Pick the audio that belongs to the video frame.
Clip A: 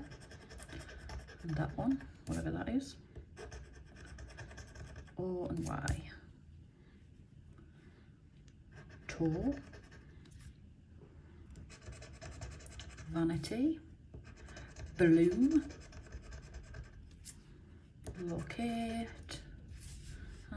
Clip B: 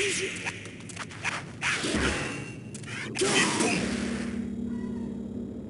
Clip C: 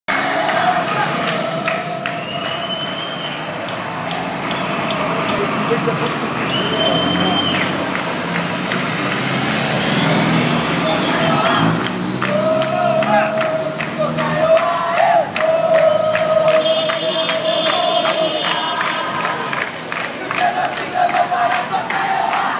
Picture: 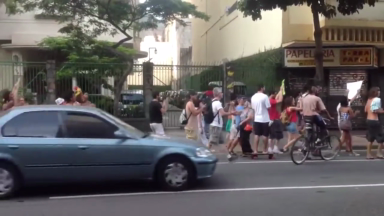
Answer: C